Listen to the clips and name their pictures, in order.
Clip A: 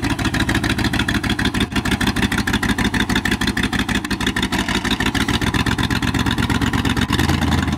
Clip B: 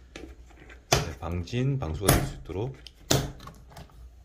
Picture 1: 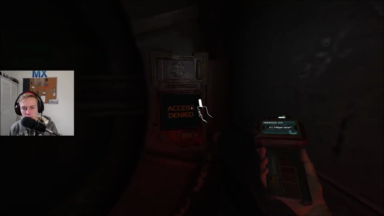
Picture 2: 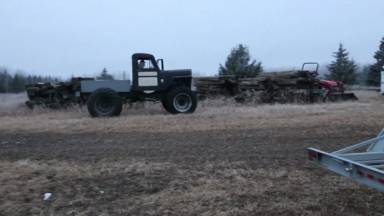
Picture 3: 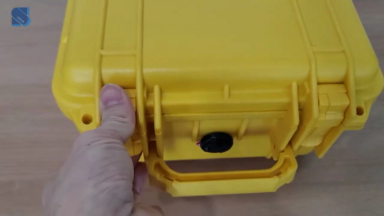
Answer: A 2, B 3